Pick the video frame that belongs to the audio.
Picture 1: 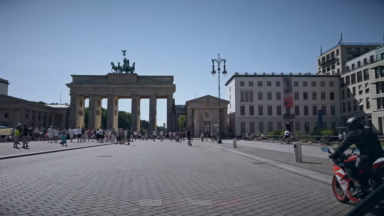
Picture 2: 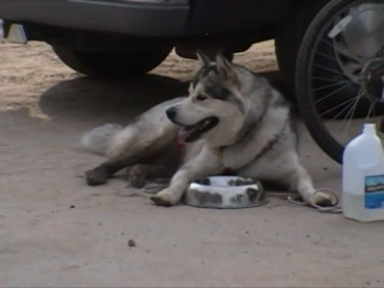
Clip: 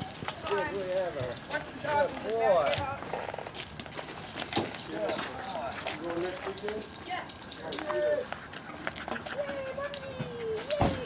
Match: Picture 2